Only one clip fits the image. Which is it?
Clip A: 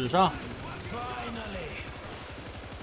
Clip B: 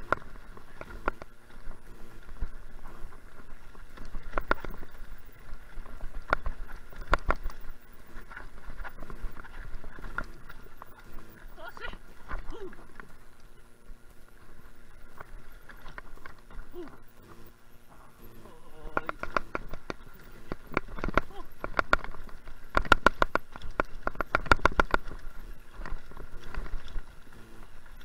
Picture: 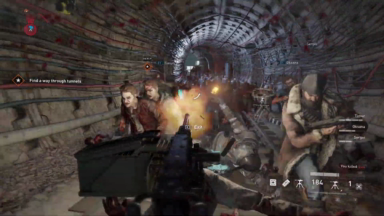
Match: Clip A